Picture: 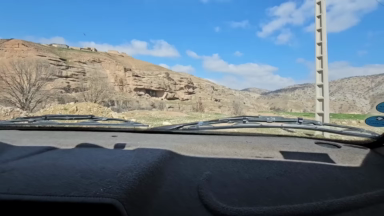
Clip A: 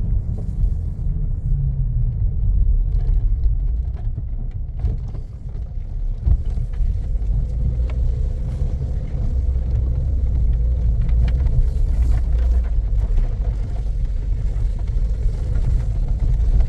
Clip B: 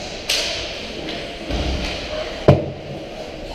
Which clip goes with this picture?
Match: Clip A